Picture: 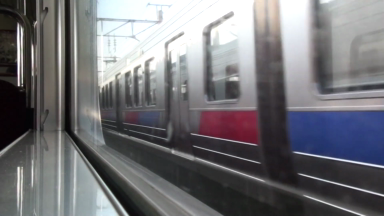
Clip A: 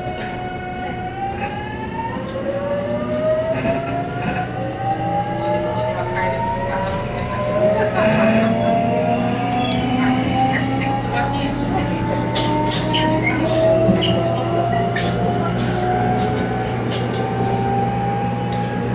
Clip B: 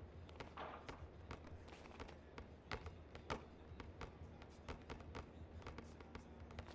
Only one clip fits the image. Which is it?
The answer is A